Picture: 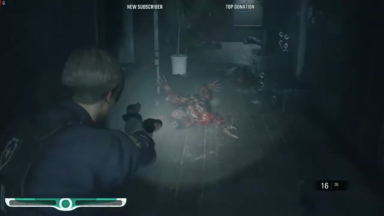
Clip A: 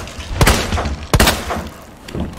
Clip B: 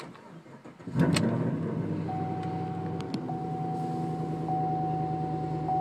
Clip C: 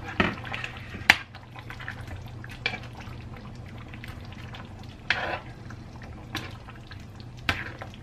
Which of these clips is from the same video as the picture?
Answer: A